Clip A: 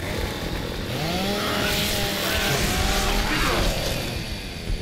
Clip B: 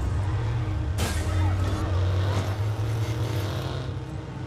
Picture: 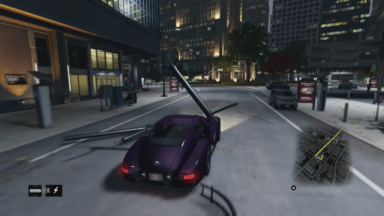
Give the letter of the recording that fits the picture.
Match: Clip B